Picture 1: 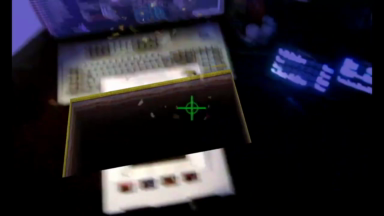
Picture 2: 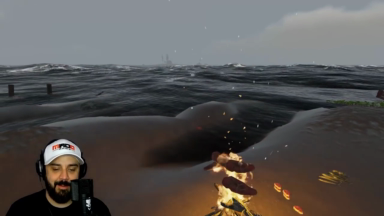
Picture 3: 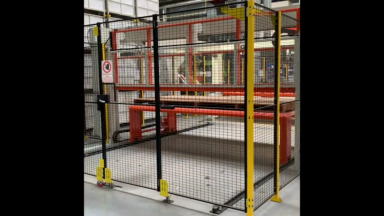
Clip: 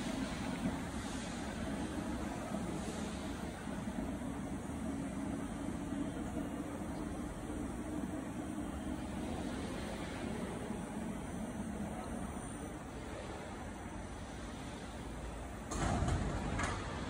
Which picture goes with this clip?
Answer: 3